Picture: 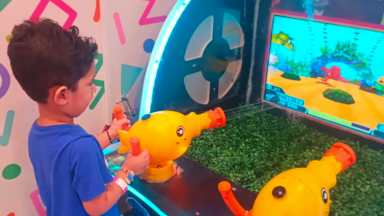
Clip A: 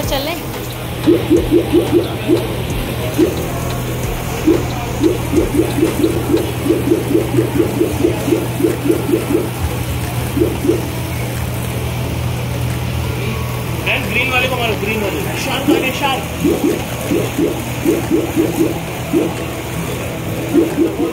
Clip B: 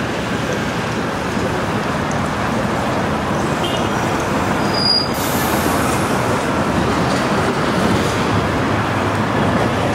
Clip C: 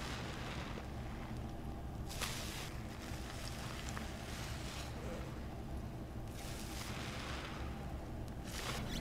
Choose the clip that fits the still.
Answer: A